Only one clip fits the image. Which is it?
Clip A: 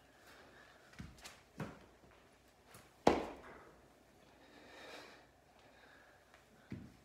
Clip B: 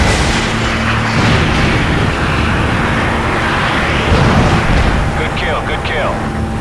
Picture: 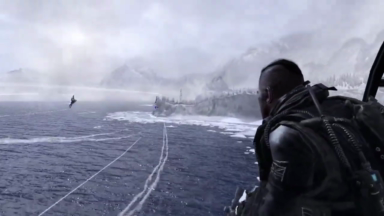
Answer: B